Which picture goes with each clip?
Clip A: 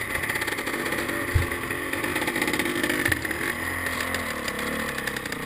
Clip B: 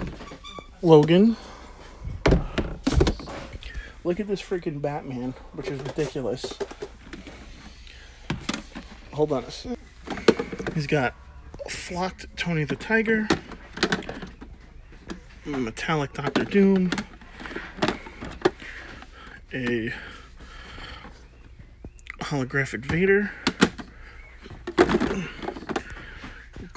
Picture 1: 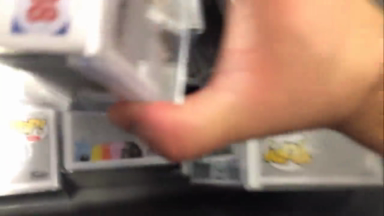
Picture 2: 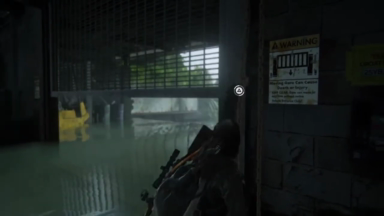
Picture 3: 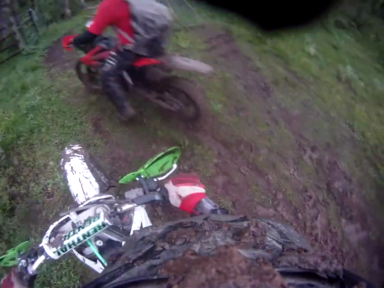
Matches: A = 3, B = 1